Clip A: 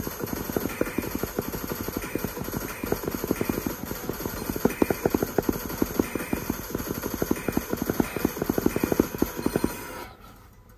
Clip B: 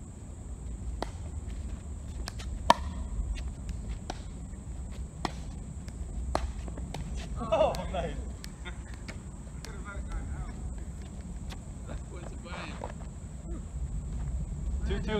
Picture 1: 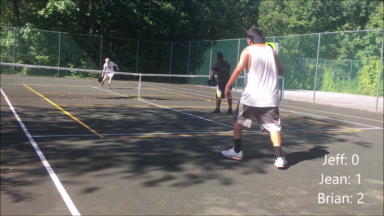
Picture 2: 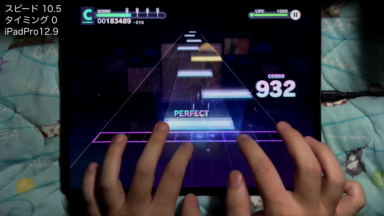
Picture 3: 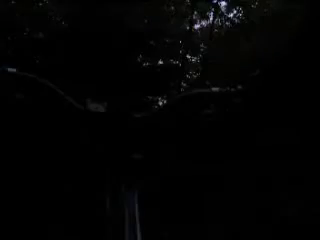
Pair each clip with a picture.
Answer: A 2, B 1